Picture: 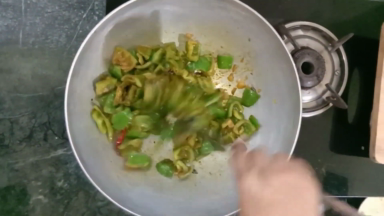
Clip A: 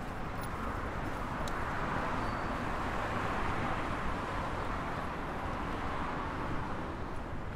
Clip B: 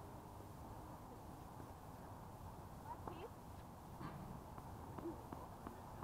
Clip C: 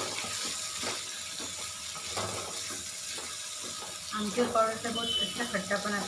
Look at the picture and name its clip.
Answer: C